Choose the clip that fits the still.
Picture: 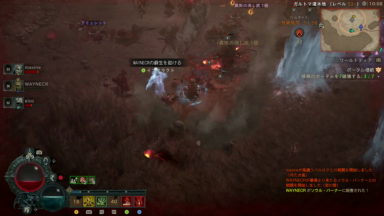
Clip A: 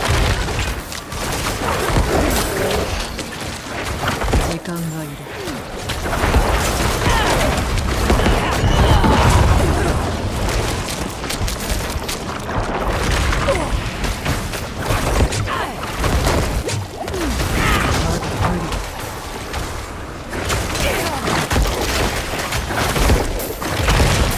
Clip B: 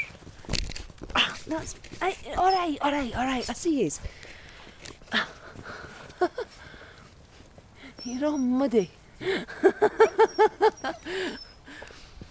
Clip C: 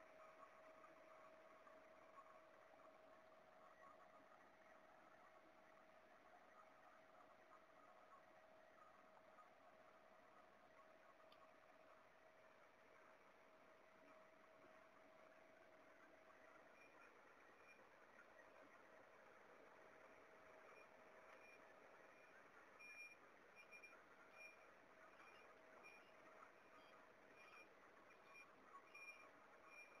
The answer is A